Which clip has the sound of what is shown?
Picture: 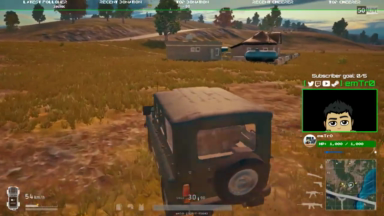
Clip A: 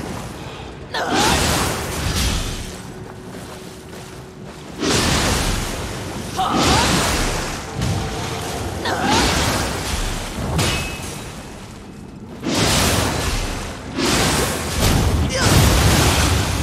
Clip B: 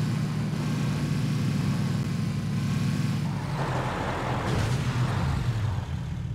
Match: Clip B